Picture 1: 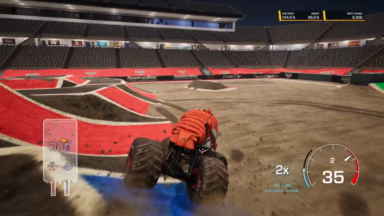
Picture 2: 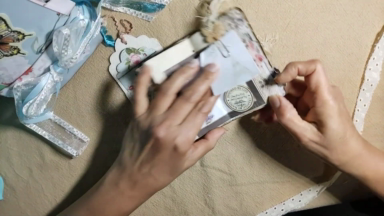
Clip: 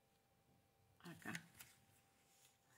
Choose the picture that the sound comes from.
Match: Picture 2